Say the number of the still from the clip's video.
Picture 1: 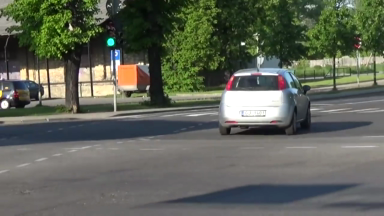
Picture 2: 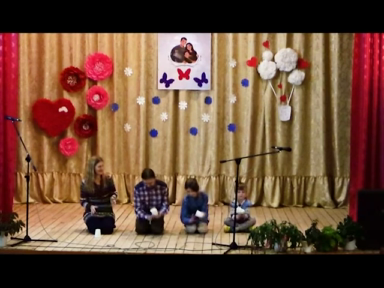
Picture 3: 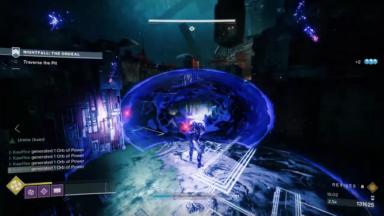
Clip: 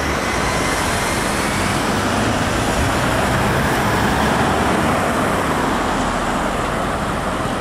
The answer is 1